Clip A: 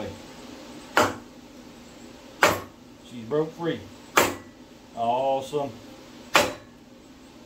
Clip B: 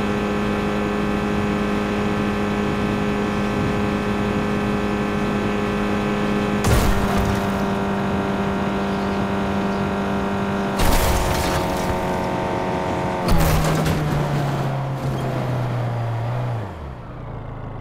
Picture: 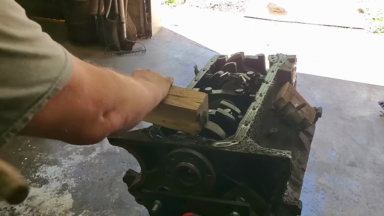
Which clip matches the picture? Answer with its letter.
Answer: A